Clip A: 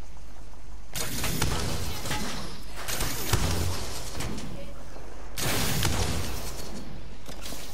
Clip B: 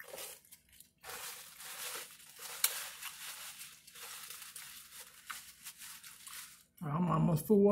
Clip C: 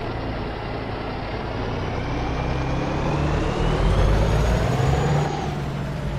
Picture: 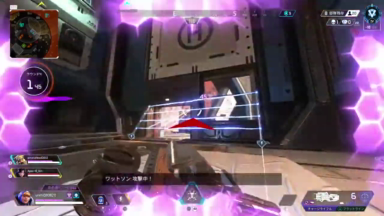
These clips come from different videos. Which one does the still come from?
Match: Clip A